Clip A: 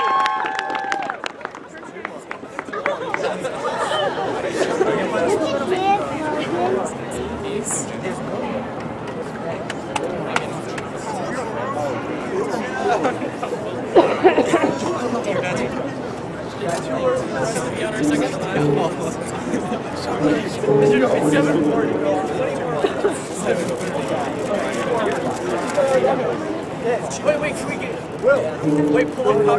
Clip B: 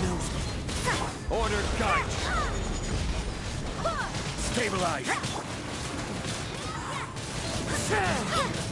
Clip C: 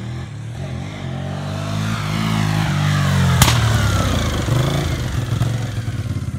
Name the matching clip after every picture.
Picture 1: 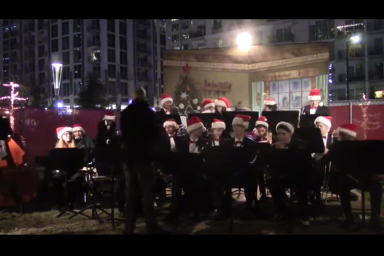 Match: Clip A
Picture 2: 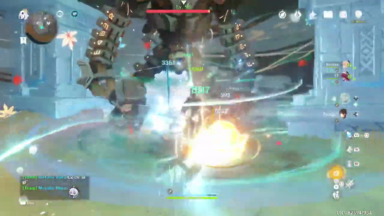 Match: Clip B